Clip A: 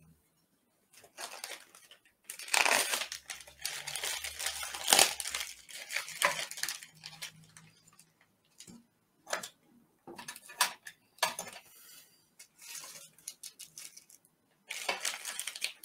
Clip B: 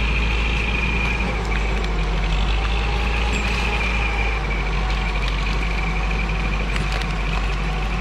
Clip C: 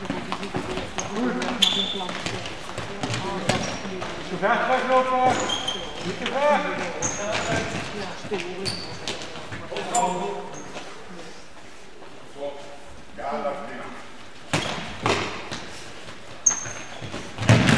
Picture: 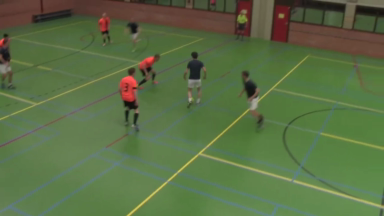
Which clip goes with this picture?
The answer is C